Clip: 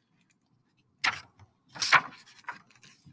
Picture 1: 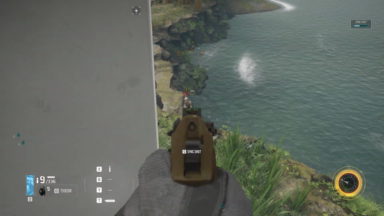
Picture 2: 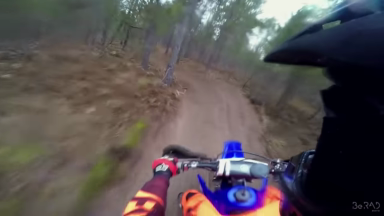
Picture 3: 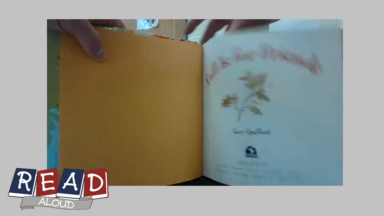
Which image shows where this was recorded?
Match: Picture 3